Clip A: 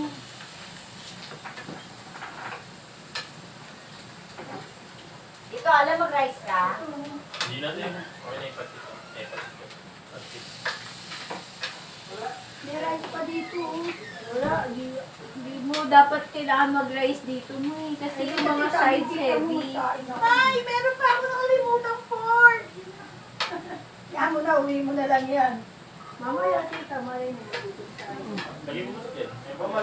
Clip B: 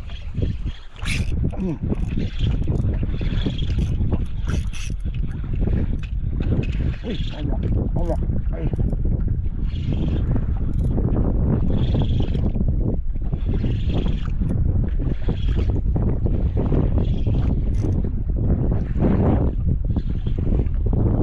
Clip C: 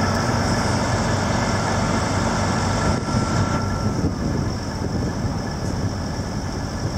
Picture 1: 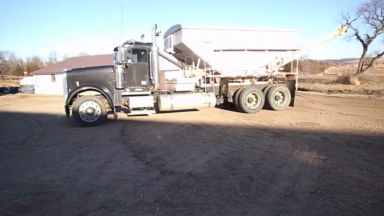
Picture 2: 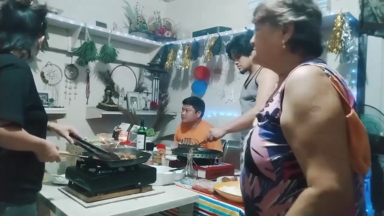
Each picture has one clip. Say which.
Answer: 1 C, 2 A